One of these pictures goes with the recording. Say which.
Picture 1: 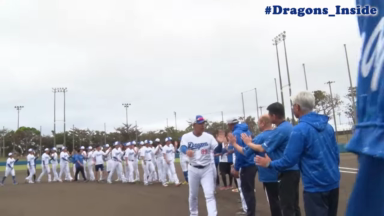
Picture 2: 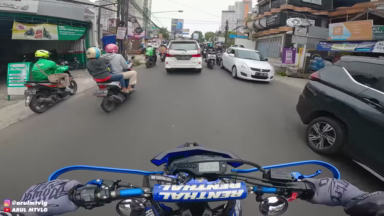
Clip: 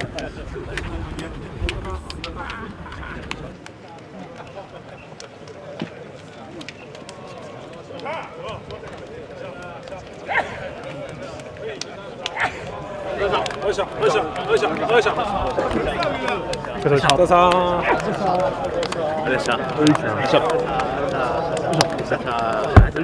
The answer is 1